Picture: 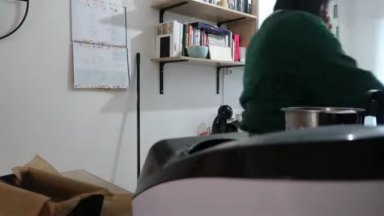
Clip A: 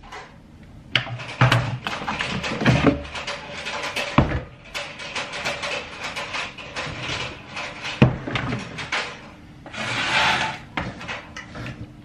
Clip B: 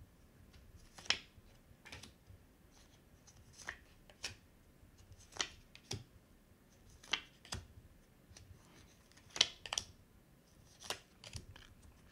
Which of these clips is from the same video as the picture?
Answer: A